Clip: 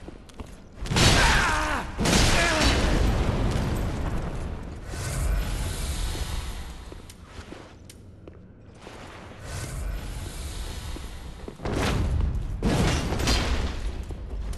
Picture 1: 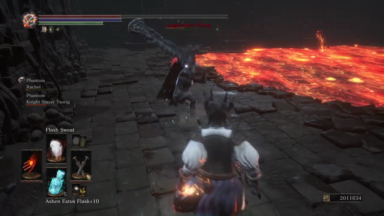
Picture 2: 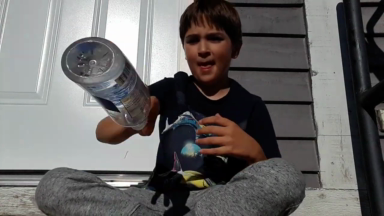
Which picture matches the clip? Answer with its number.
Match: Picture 1